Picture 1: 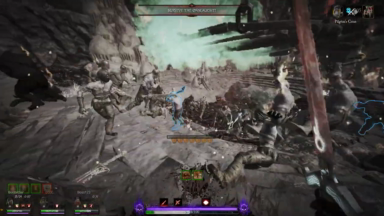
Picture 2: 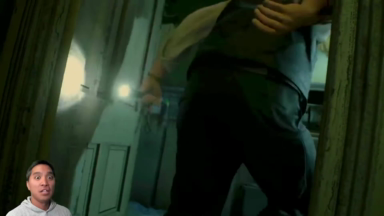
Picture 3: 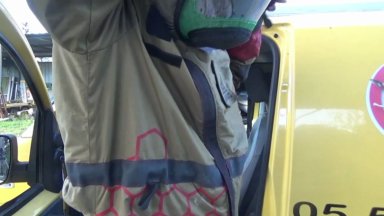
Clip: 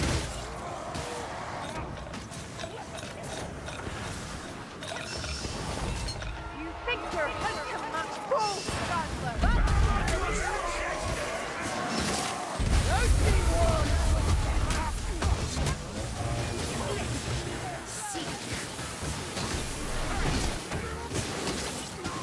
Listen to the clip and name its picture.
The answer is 1